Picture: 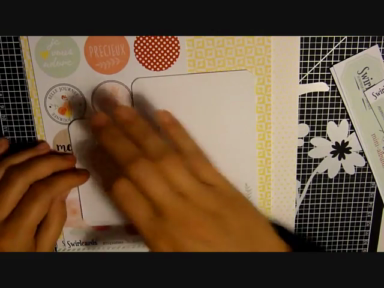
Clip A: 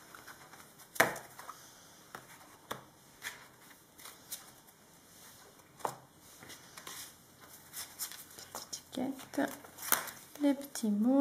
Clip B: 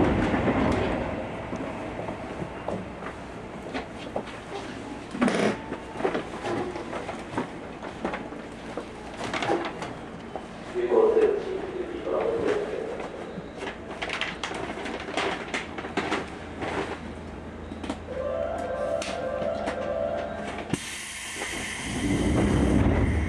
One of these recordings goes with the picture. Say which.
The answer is A